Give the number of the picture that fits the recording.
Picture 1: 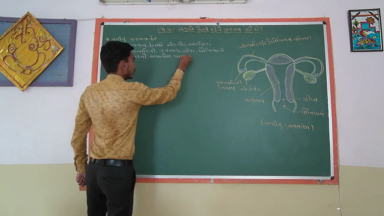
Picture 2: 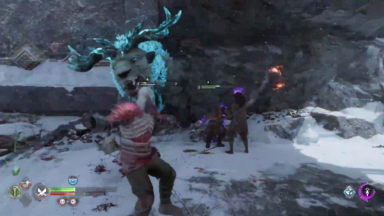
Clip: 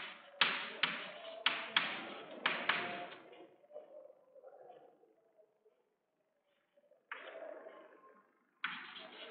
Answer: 1